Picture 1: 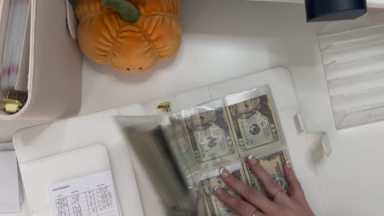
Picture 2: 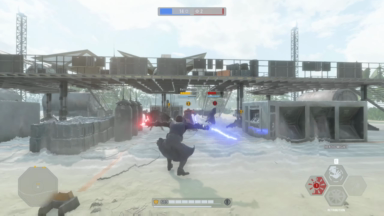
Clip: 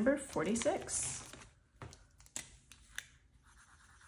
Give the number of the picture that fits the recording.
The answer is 1